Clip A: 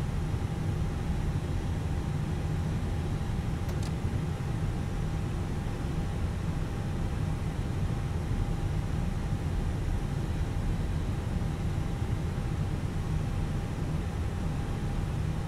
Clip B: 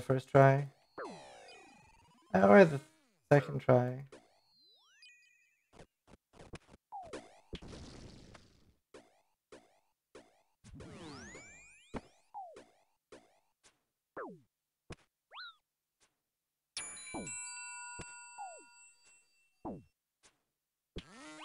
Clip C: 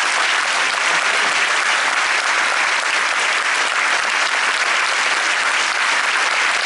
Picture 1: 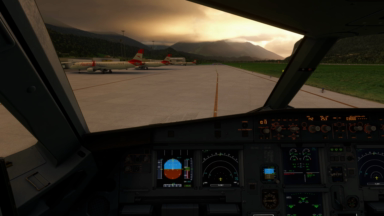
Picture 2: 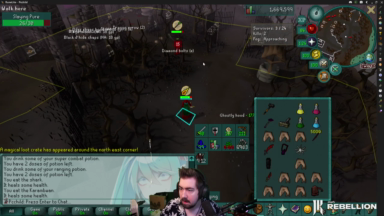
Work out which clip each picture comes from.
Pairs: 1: A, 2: B